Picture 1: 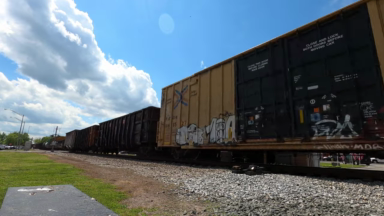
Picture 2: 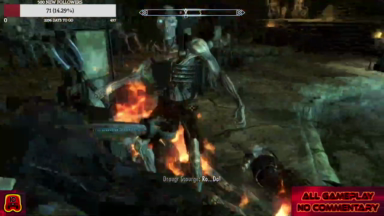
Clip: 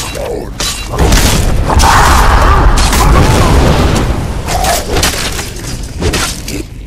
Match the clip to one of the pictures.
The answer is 2